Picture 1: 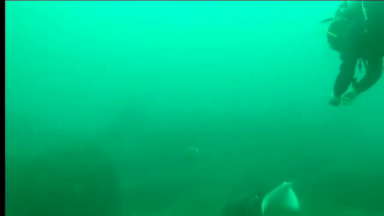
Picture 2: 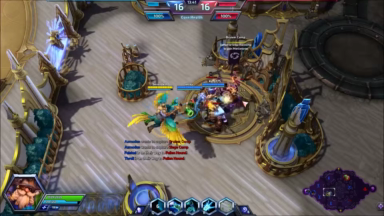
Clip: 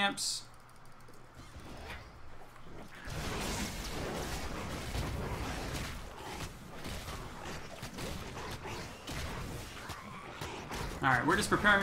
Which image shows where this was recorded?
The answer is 2